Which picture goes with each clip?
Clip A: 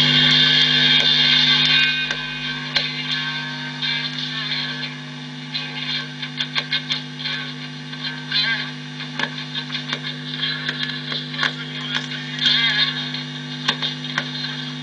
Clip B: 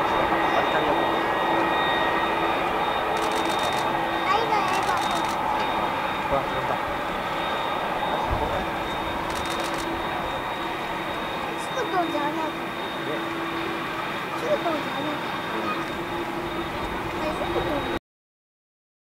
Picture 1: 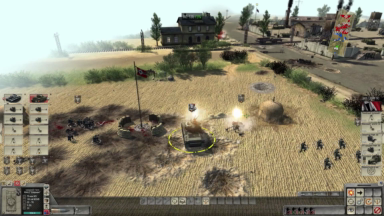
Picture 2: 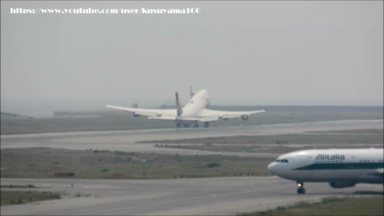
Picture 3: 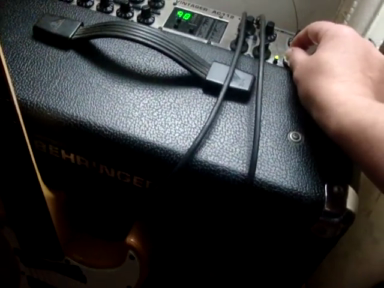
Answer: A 3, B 2